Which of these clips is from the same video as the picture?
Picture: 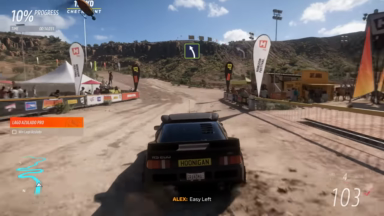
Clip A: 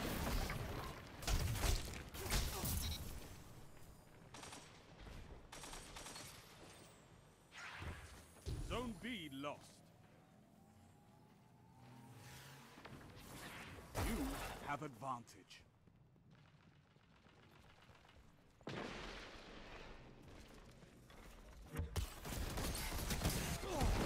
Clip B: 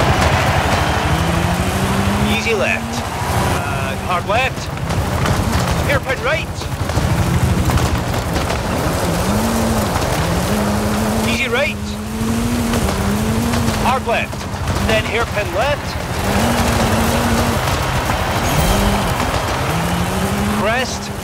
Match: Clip B